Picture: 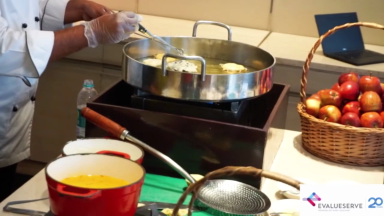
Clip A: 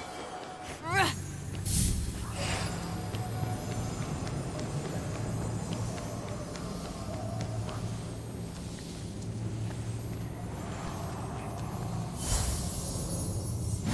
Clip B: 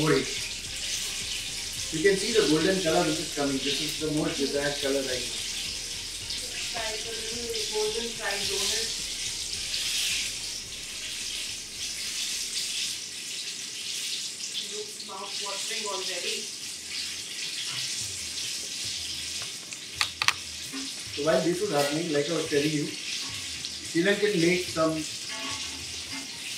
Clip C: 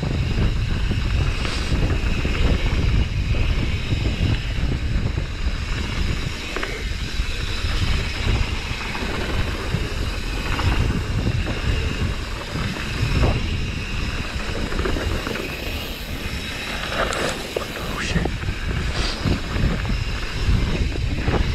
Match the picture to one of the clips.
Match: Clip B